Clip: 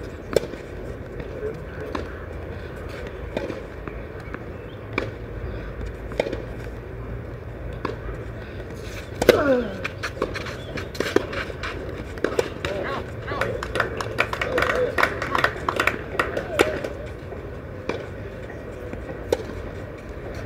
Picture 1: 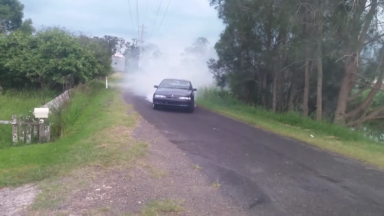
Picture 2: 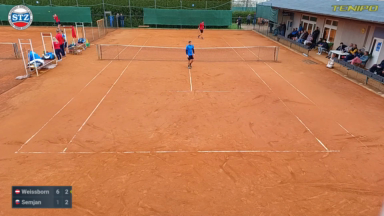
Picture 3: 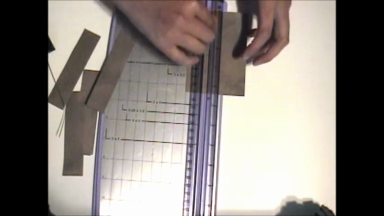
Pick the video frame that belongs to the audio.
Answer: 2